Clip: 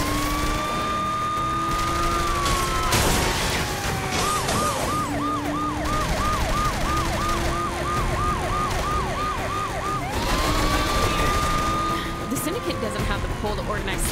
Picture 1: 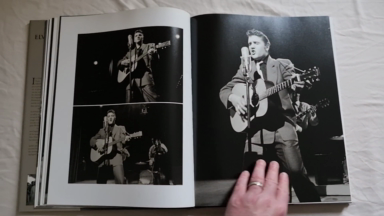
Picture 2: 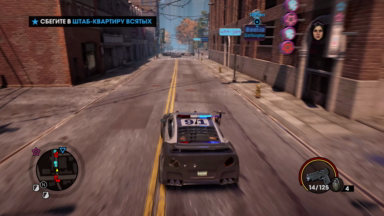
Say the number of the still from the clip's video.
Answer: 2